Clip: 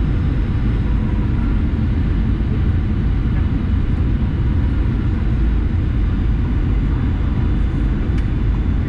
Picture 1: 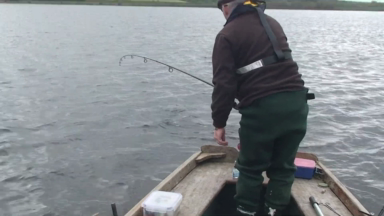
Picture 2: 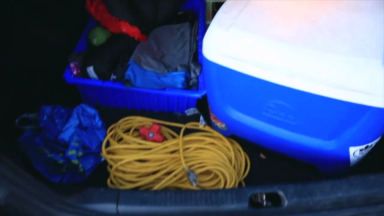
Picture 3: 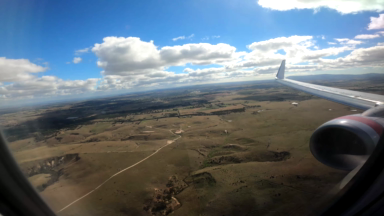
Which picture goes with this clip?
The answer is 3